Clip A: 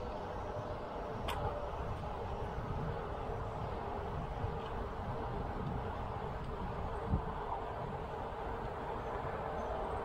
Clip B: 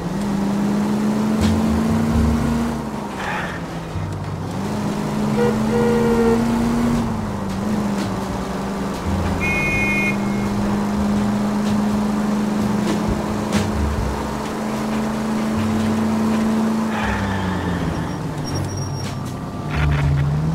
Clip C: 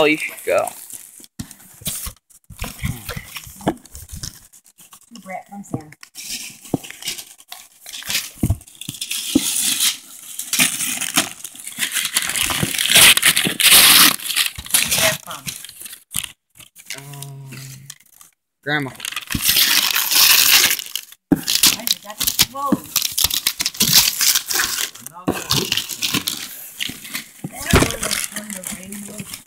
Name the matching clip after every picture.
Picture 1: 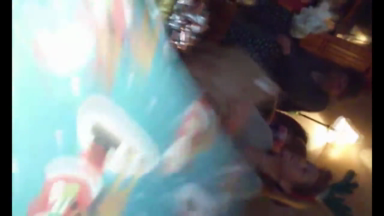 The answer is C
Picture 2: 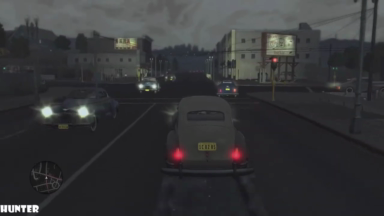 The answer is B